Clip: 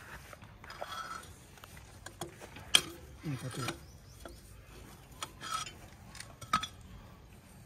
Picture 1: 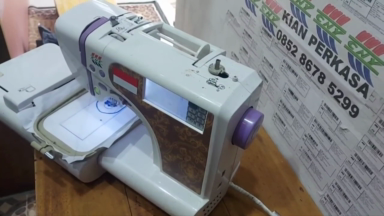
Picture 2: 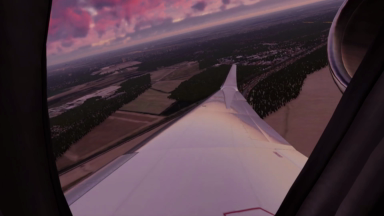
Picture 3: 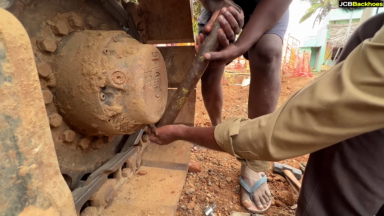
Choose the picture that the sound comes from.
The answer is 3